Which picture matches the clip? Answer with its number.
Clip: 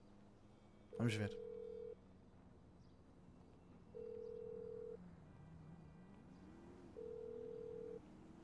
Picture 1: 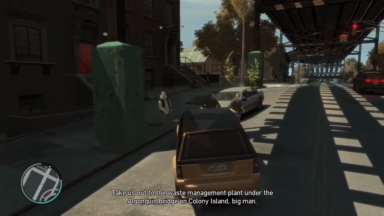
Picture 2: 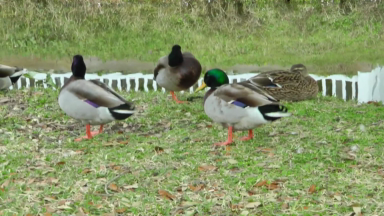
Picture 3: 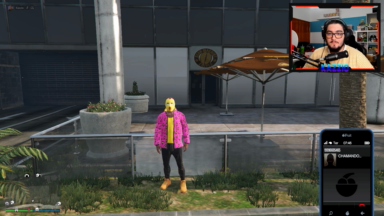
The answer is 3